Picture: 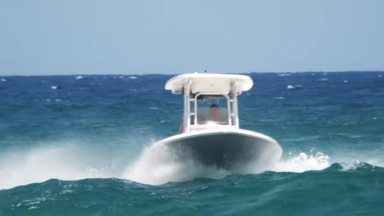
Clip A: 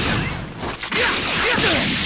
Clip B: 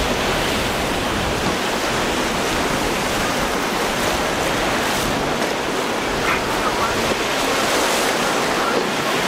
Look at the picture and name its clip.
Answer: B